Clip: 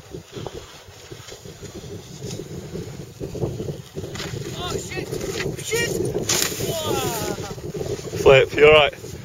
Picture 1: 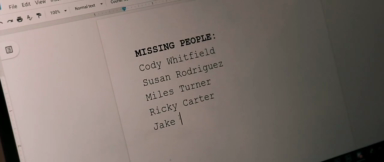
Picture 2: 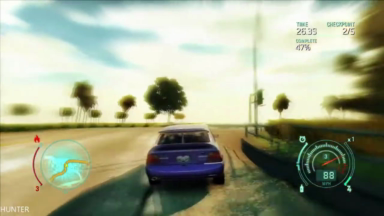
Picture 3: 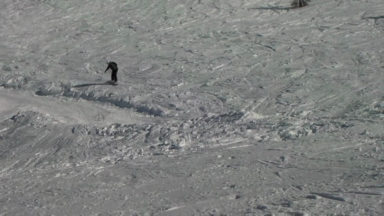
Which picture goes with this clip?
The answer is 3